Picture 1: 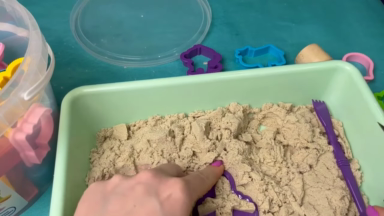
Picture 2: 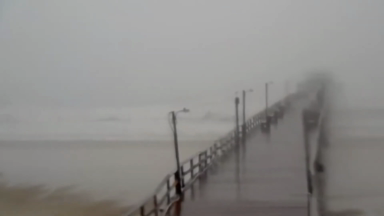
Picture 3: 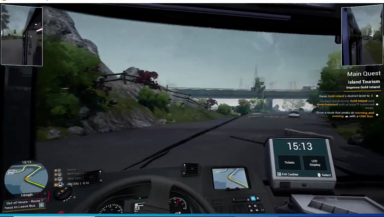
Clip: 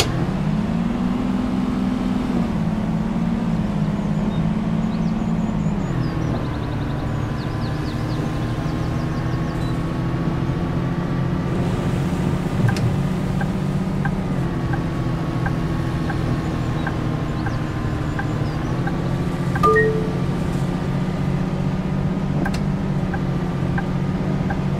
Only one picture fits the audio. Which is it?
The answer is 3